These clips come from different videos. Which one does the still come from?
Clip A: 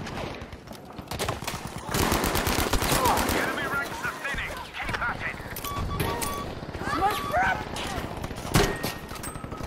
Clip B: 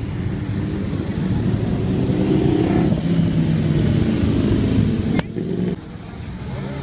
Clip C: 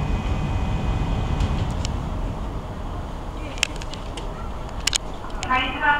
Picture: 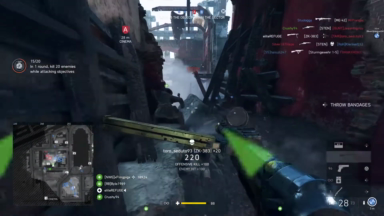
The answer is A